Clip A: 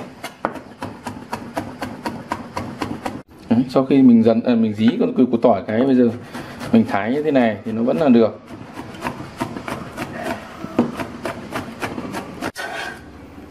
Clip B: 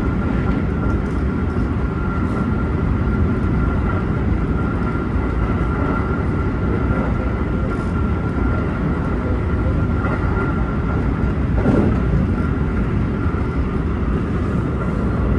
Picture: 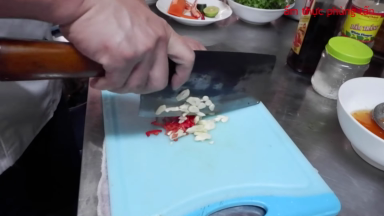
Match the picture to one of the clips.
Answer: A